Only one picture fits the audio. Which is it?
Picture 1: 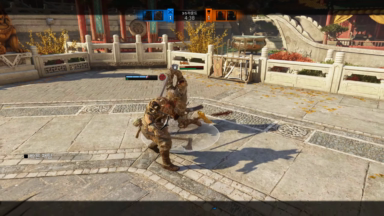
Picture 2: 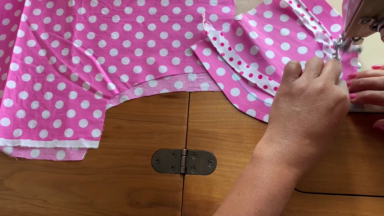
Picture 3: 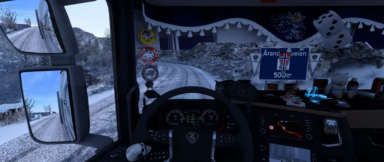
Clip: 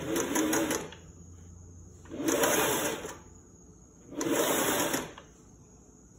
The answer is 2